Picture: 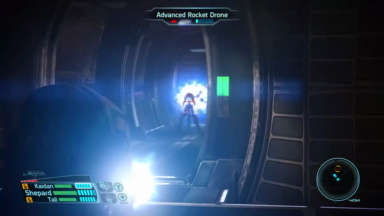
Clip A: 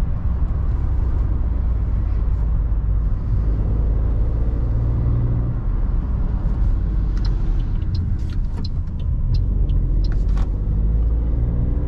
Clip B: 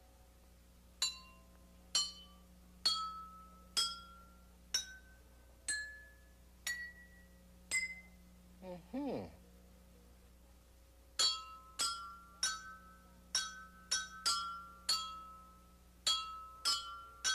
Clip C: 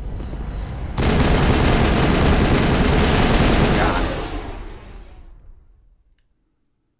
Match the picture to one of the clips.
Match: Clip C